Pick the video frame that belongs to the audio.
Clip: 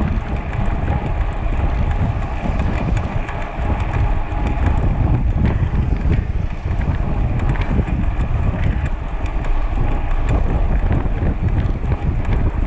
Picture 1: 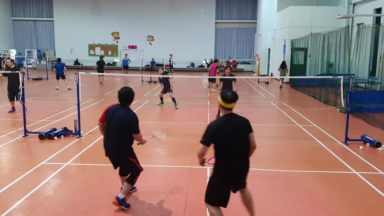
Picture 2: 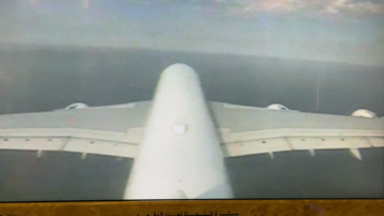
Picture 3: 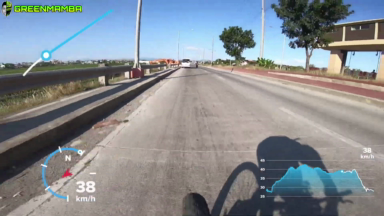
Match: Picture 3